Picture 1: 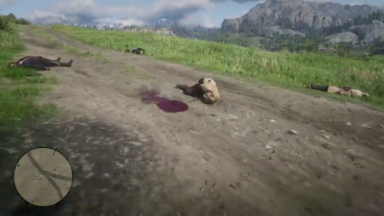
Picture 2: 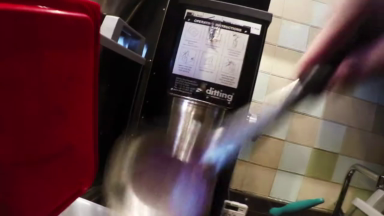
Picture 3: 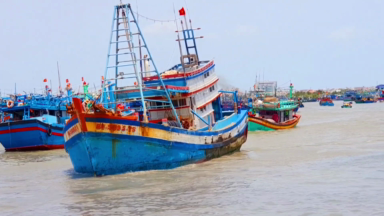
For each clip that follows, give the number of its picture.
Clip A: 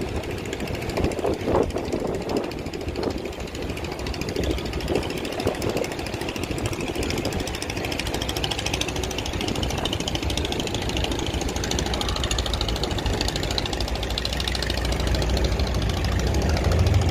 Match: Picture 3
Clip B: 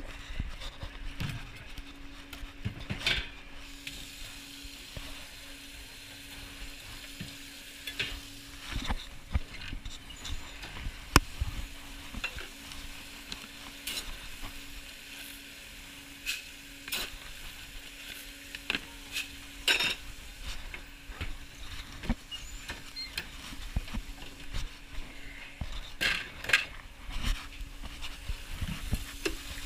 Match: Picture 2